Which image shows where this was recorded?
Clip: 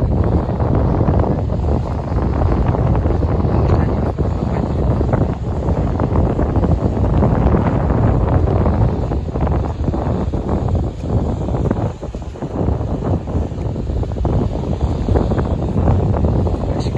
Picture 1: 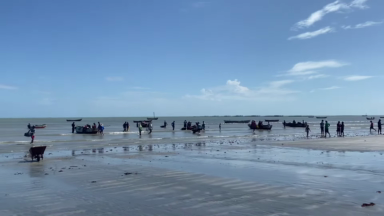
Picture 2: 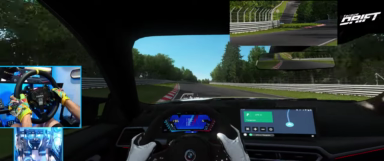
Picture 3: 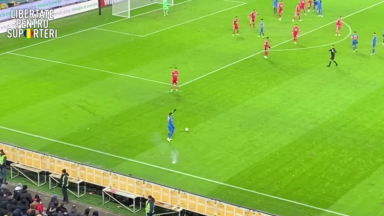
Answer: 1